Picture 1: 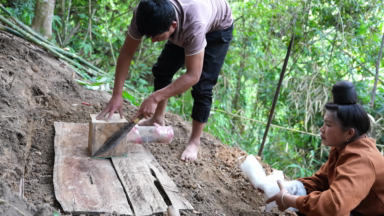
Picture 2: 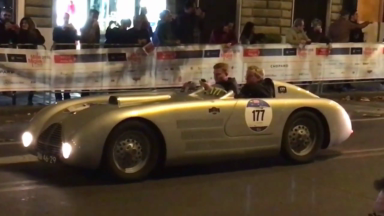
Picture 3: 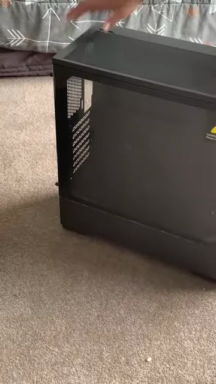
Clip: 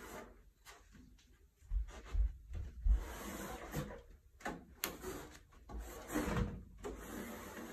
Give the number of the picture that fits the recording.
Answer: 3